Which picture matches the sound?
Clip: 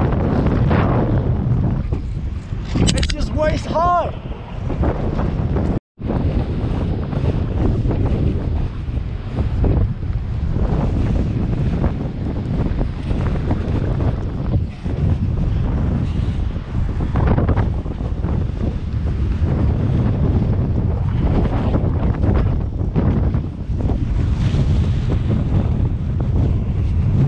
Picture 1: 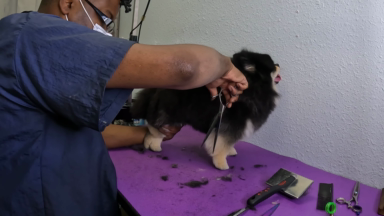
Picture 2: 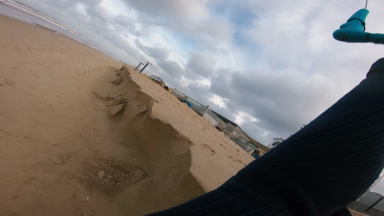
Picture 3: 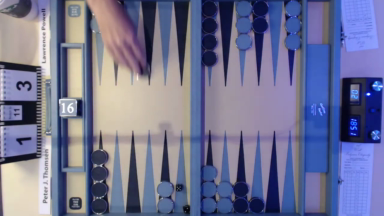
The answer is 2